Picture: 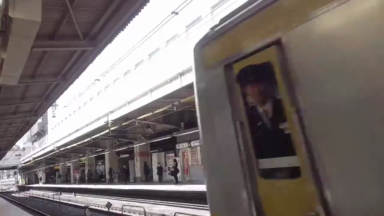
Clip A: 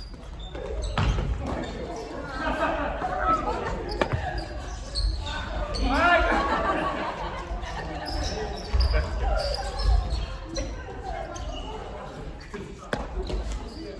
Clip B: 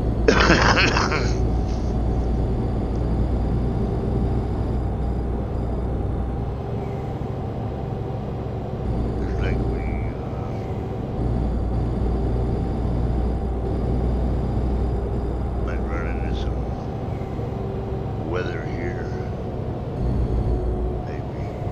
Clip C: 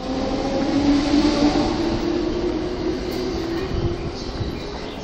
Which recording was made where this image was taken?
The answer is C